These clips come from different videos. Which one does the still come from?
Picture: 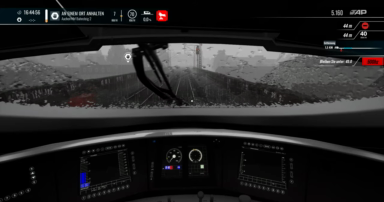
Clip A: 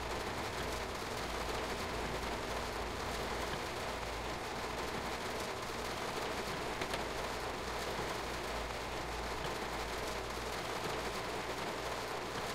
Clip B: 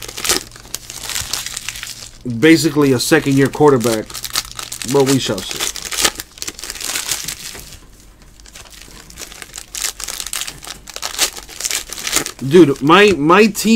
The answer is A